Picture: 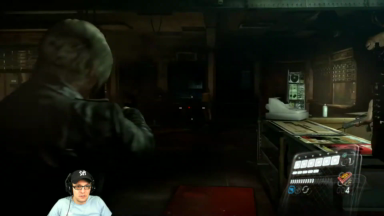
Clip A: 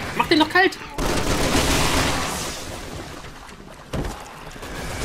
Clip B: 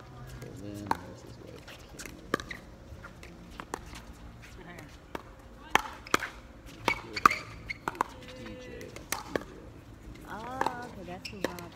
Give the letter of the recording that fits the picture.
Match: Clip A